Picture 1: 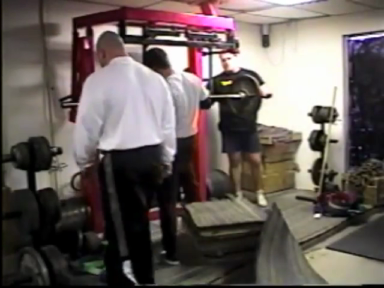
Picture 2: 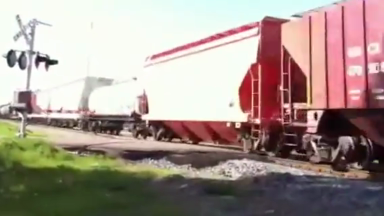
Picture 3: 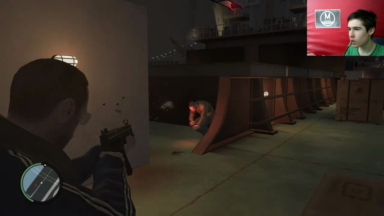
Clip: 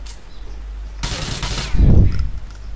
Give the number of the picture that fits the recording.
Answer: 3